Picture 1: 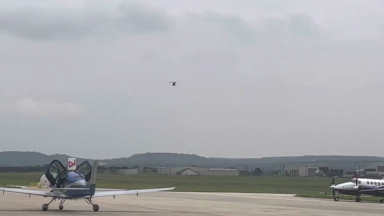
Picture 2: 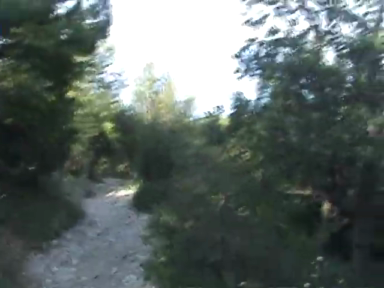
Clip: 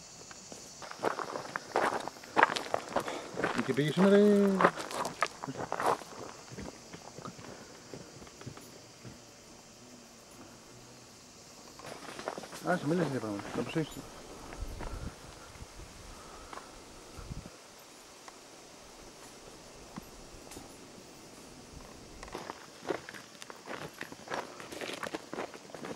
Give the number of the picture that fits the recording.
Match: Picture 2